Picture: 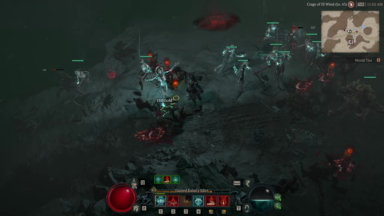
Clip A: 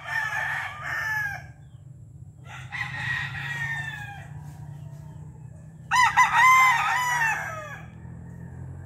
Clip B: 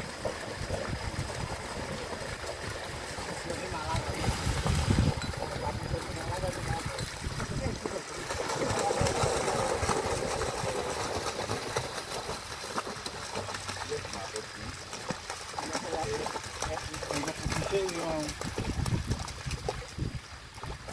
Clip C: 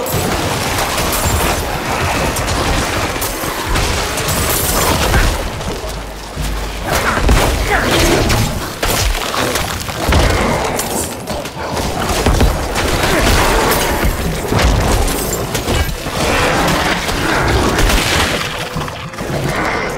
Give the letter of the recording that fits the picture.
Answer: C